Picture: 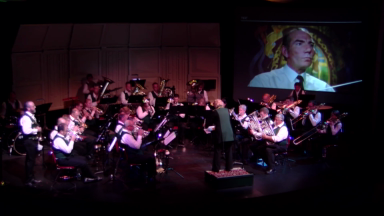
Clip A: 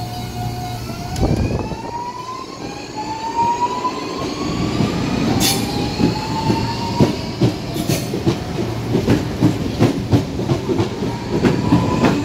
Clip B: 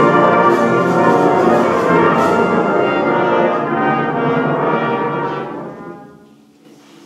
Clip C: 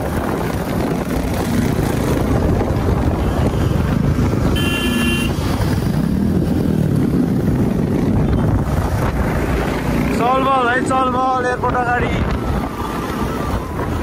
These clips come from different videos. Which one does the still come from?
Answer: B